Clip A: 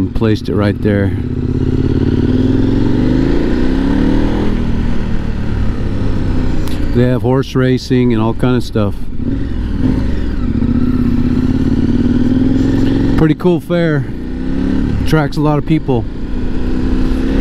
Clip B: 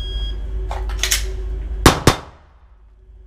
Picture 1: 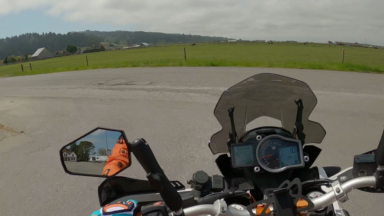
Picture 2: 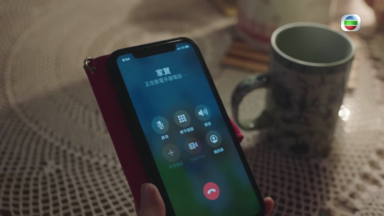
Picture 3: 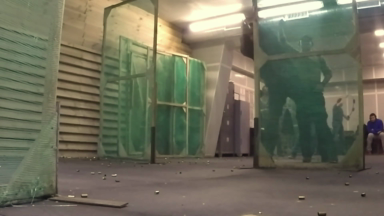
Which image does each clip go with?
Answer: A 1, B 3